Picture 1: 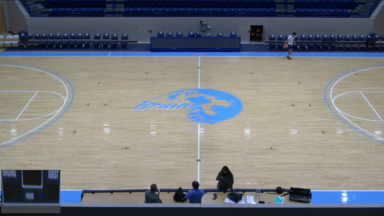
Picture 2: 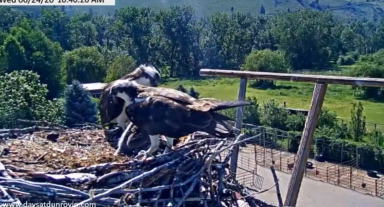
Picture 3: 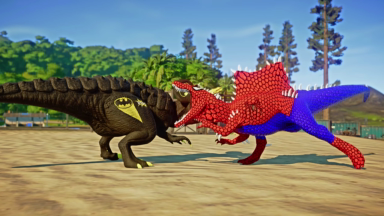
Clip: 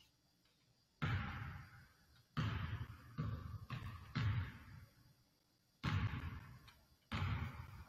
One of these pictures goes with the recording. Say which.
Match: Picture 1